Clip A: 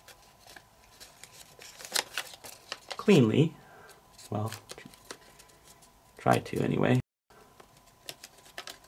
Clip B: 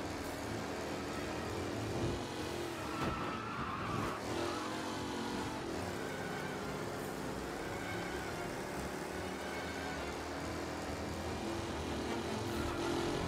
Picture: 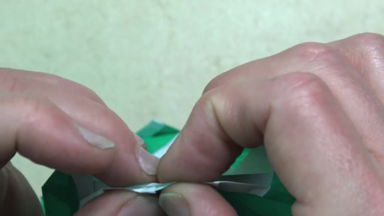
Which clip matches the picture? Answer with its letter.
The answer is A